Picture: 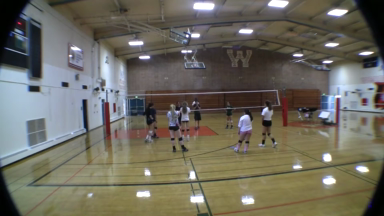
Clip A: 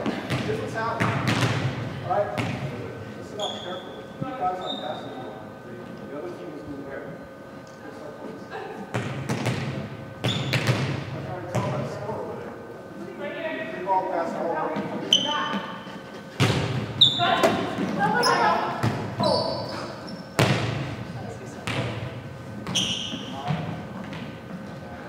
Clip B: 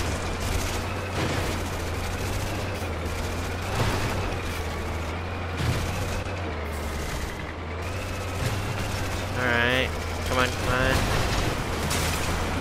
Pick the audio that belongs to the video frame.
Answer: A